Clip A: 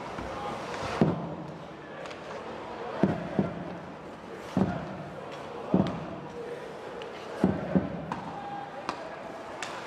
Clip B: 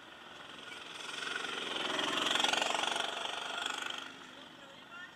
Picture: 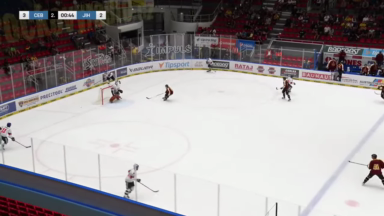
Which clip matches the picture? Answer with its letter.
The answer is A